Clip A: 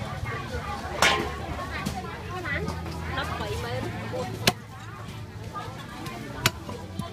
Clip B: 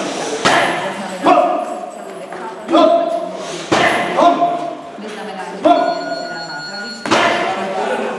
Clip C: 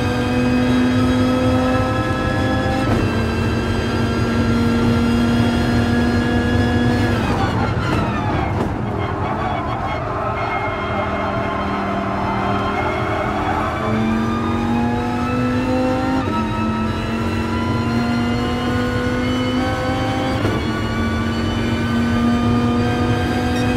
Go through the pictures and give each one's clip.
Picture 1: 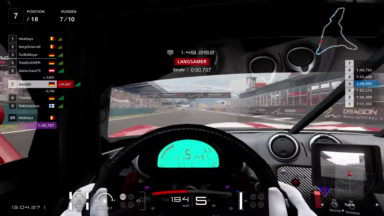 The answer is C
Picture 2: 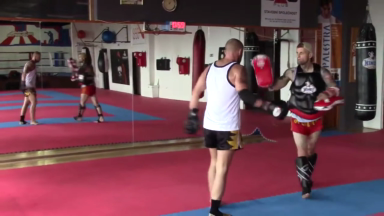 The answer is B